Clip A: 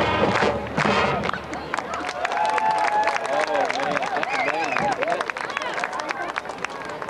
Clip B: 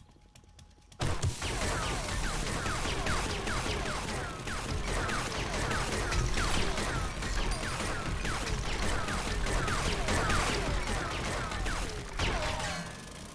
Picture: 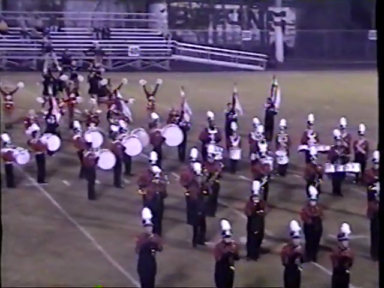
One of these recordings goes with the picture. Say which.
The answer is A